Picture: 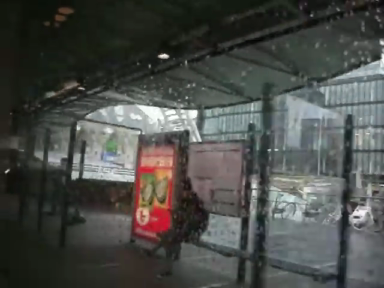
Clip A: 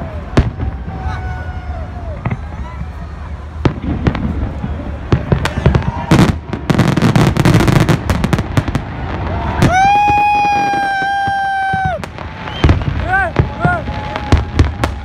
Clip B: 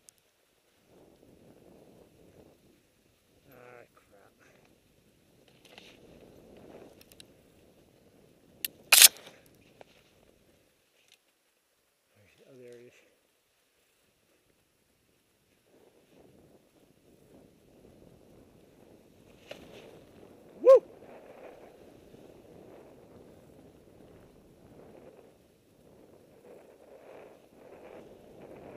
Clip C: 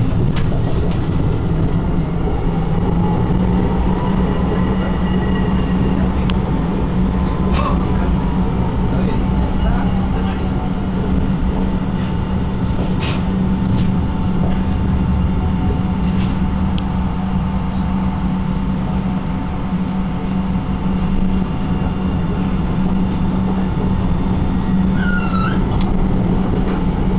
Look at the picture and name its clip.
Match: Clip C